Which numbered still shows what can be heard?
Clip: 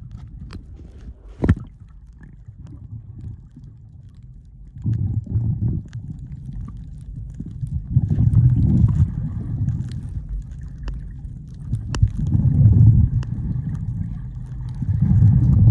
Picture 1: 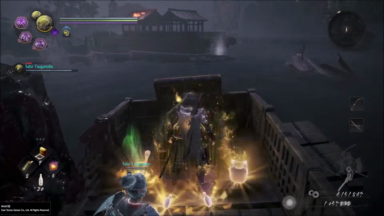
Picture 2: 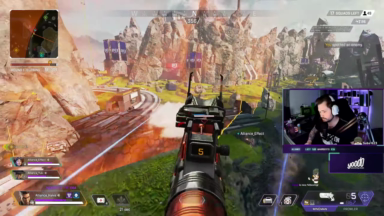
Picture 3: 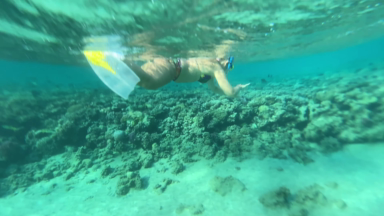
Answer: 3